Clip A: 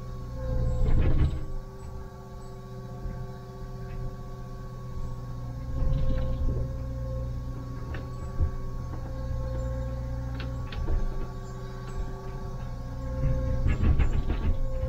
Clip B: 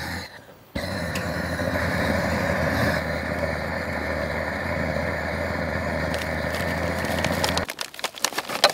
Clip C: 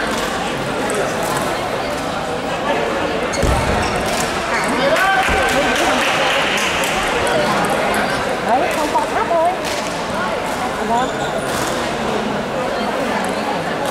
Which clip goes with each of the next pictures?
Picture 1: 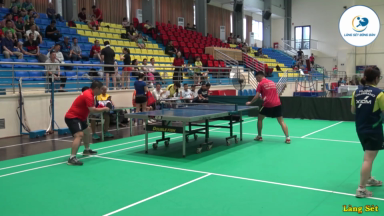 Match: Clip C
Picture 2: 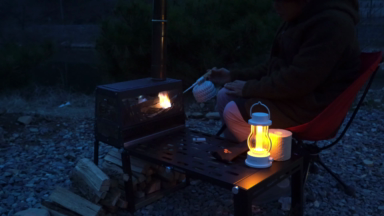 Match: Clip B